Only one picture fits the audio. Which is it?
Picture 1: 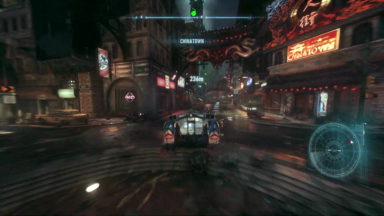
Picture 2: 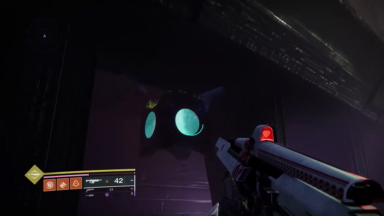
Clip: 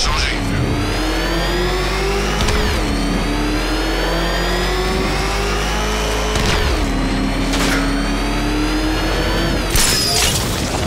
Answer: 1